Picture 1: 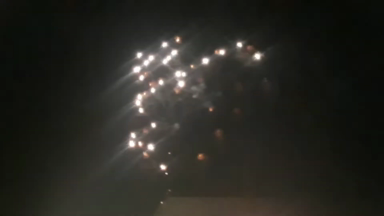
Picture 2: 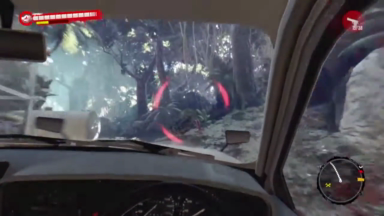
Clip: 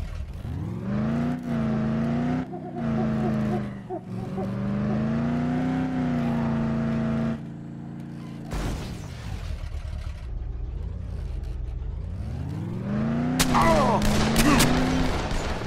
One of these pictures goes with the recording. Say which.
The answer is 2